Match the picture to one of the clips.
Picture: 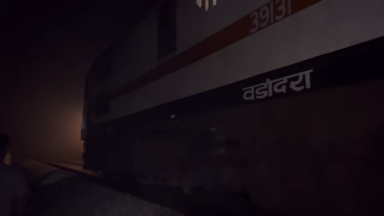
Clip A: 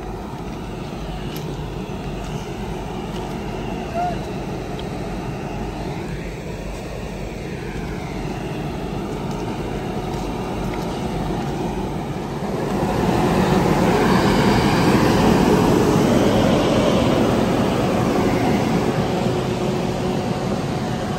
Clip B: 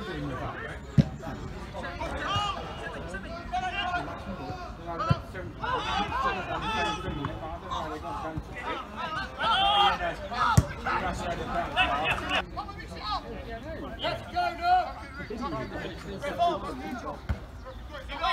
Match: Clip A